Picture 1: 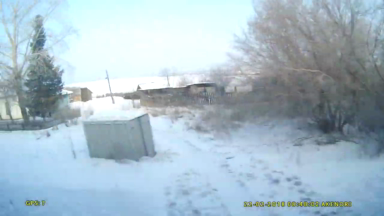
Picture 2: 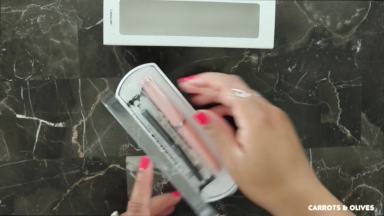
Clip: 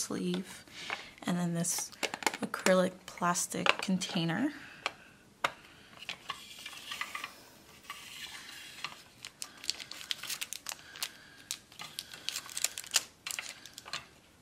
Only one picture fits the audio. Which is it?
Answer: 2